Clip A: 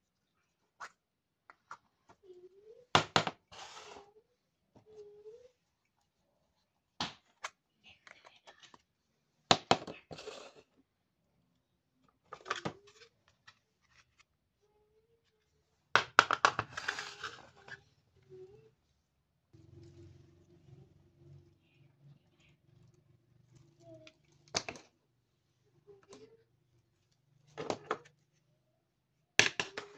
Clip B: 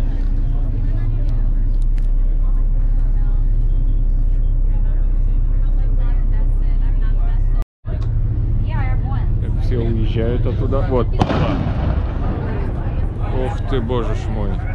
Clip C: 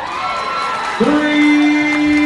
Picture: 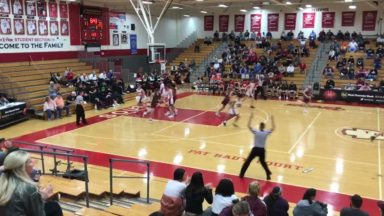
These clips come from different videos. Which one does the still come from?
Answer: C